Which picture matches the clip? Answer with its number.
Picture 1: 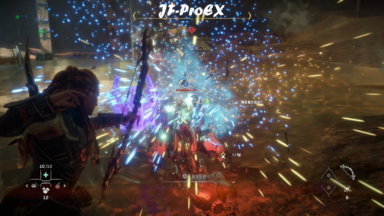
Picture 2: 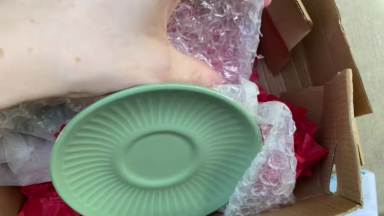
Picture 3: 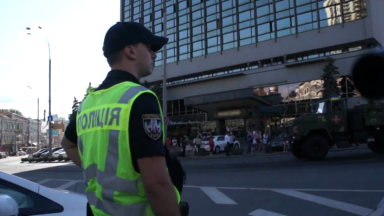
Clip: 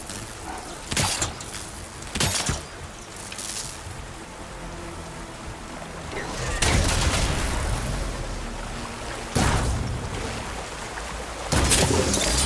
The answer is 1